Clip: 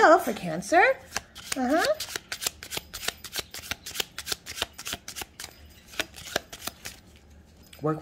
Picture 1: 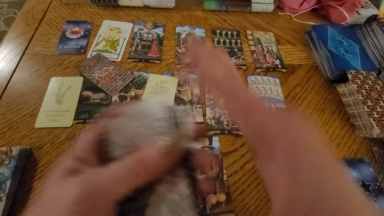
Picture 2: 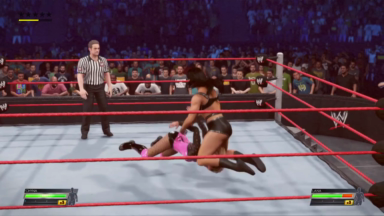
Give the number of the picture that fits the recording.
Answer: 1